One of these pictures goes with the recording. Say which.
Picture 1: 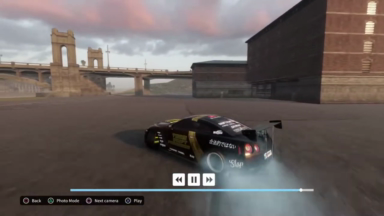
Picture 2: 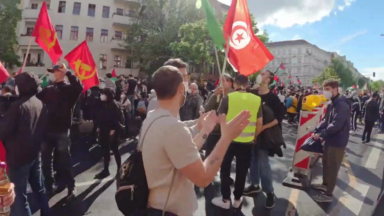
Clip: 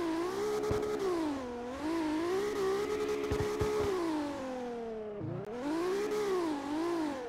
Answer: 1